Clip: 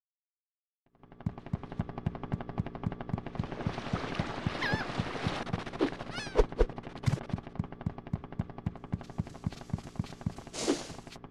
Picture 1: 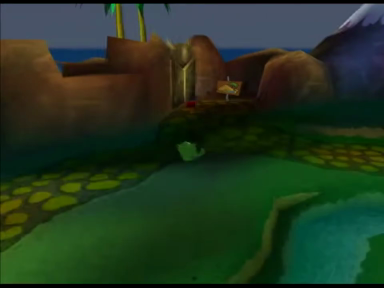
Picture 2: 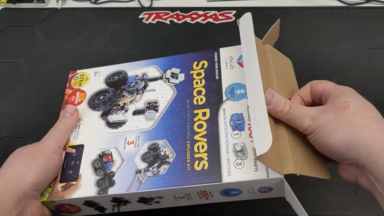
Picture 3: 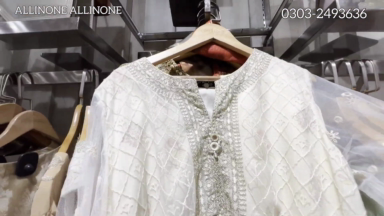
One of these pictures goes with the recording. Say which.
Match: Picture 1